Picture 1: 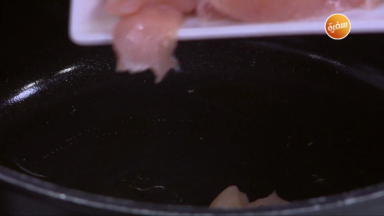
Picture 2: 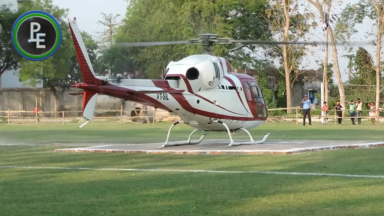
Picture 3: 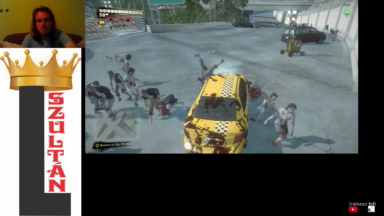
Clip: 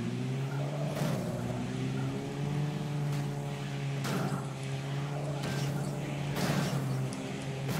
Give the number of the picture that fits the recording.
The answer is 3